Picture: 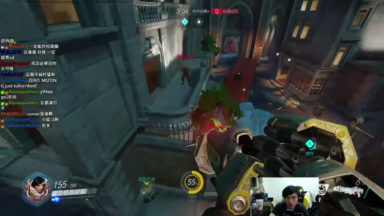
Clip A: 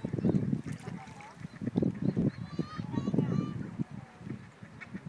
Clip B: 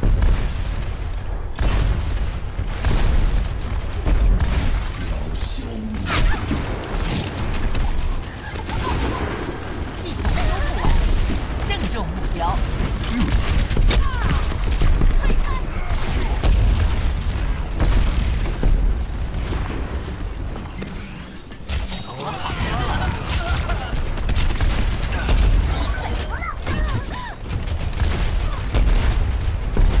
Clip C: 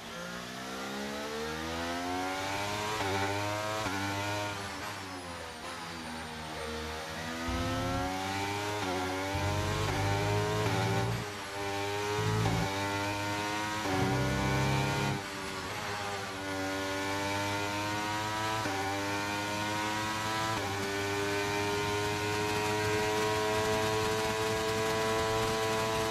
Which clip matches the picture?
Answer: B